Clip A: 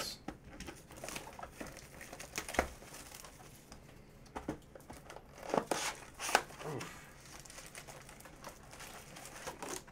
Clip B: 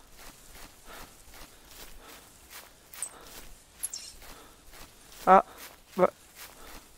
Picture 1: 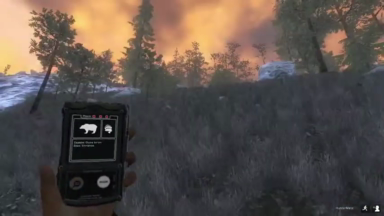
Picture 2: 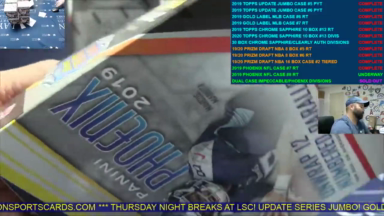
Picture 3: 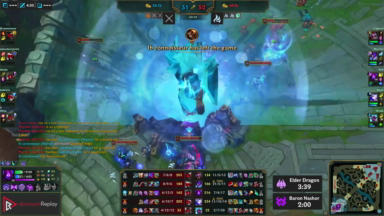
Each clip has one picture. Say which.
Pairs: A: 2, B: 1